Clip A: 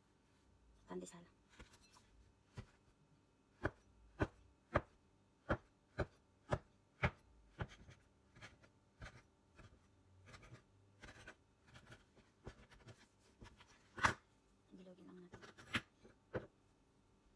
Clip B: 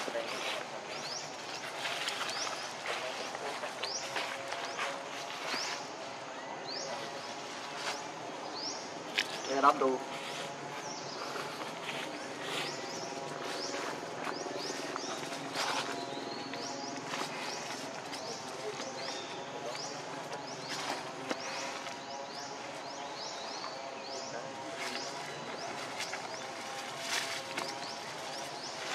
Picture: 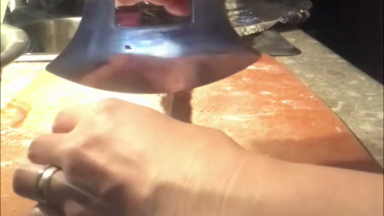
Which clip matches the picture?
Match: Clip A